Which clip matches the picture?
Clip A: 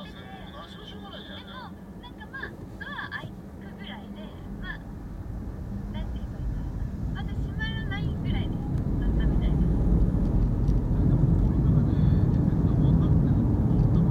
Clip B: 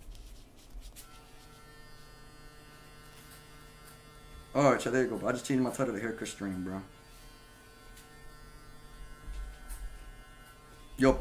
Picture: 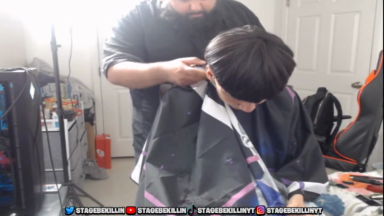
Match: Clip B